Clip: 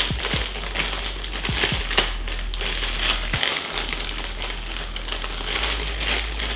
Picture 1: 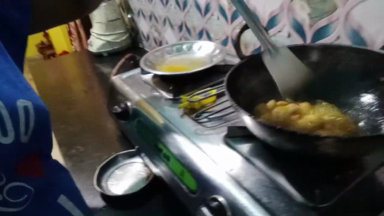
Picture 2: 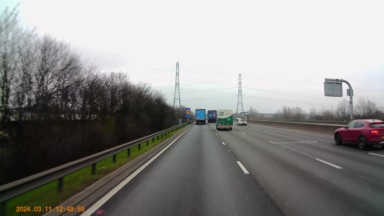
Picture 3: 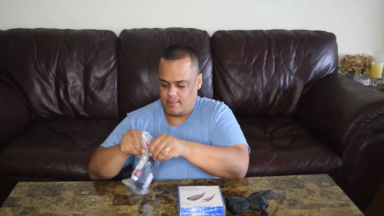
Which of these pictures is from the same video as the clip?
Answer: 3